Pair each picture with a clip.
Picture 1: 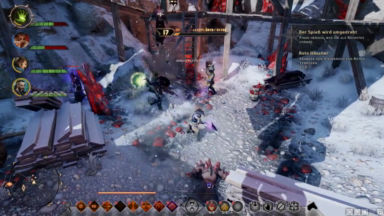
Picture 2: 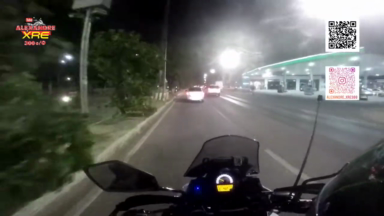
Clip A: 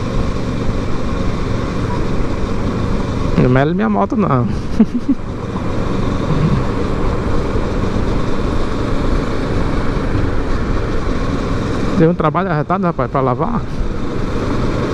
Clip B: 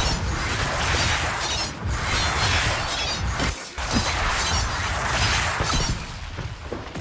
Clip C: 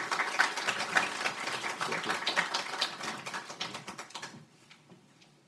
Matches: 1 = B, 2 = A